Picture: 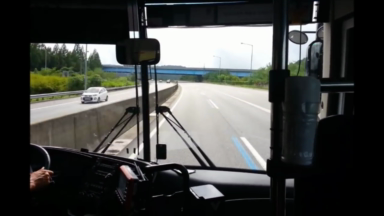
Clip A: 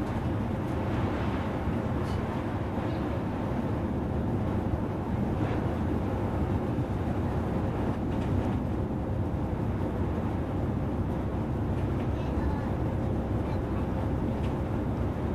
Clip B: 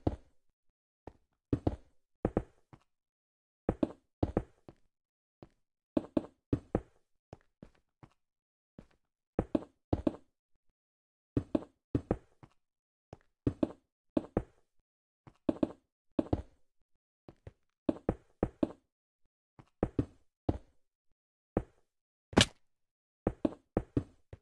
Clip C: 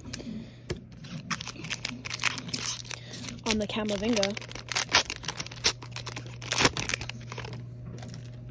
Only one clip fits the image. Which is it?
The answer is A